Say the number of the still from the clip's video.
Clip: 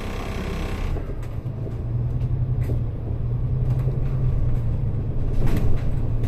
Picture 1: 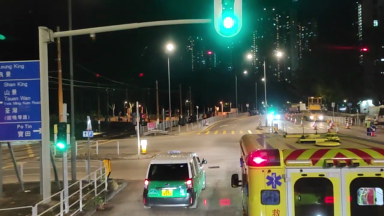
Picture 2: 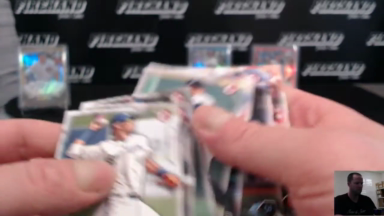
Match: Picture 1